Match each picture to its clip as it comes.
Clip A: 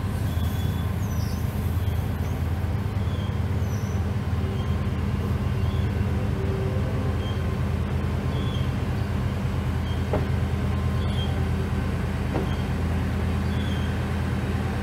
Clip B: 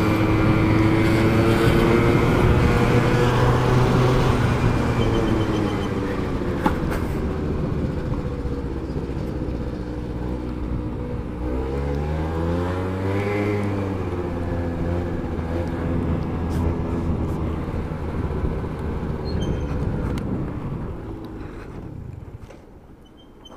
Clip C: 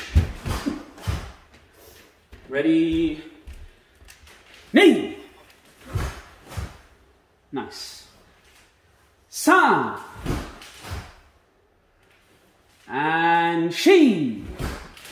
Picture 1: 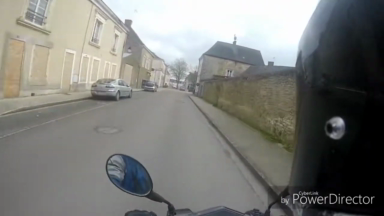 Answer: B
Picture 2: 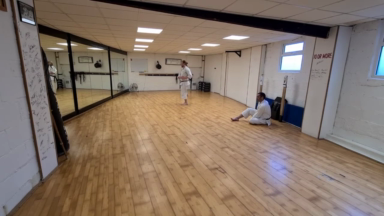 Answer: C